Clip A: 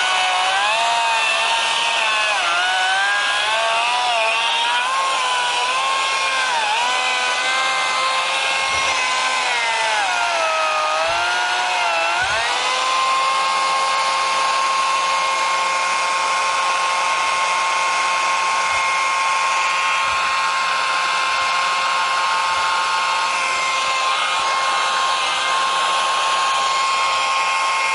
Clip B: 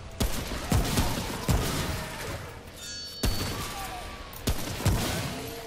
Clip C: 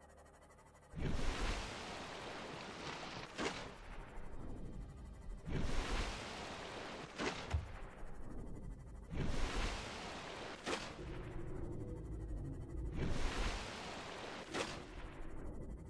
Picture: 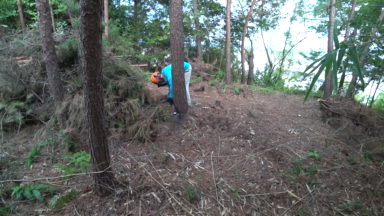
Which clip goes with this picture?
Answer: A